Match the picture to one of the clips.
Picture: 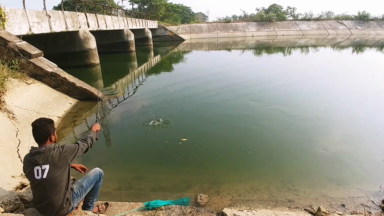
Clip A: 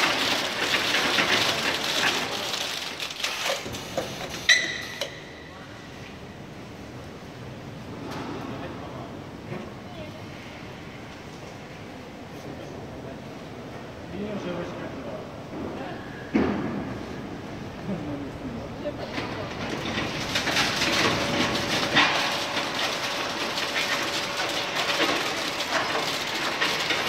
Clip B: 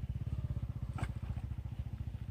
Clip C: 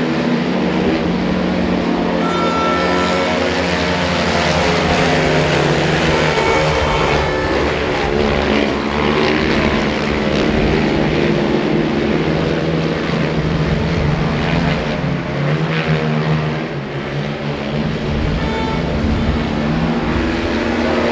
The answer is B